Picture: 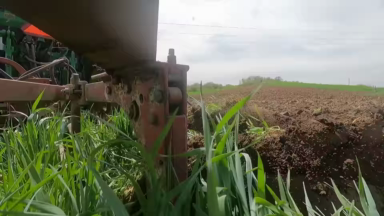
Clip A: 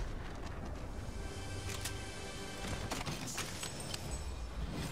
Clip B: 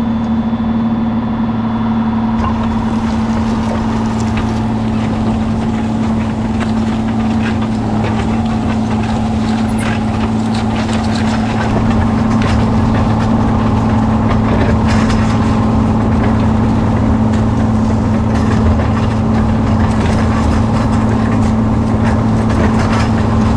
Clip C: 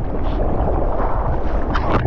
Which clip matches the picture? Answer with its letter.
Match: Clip B